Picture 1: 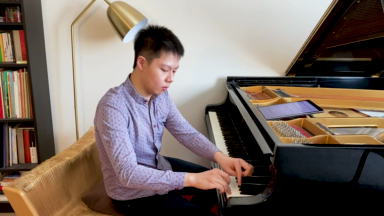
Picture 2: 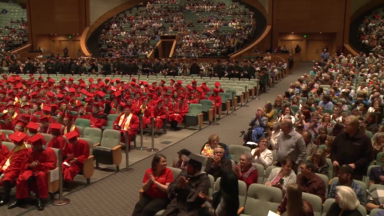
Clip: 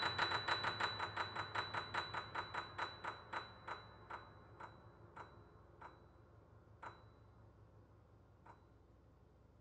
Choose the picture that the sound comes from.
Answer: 1